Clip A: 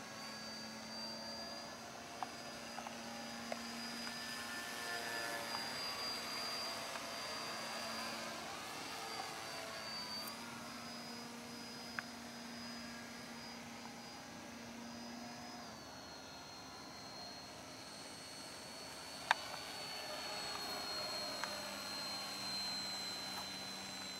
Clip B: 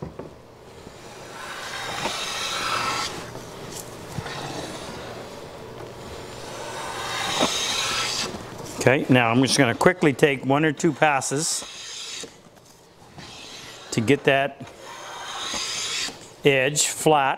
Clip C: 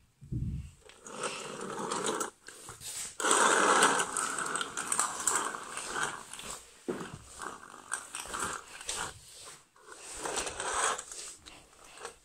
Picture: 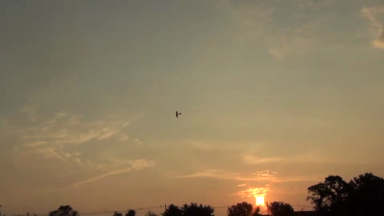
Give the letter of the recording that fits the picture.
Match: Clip A